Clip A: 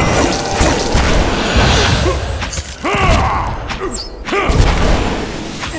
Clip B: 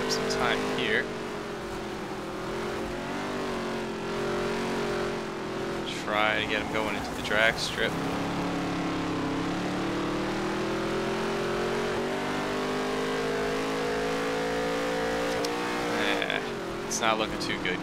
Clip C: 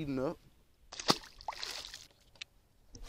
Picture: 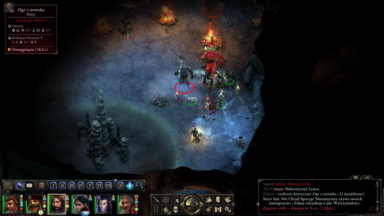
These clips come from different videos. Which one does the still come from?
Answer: A